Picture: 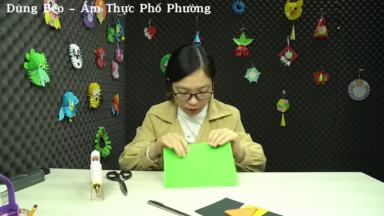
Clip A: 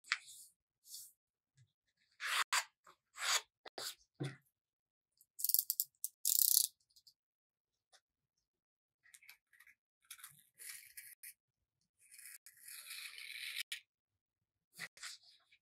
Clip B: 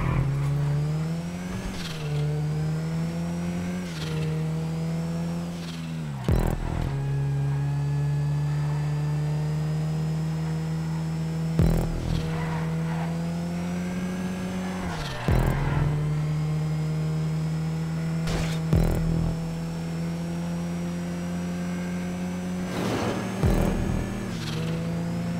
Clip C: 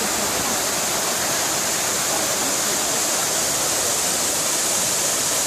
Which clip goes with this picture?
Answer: A